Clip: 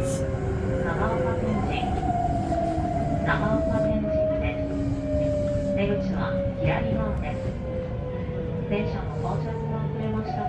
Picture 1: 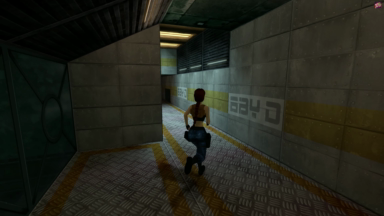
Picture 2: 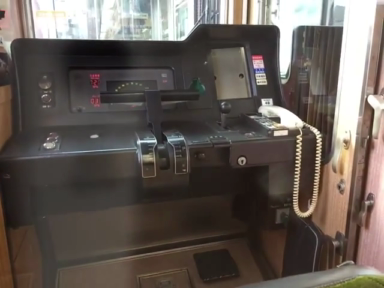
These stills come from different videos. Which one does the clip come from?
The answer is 2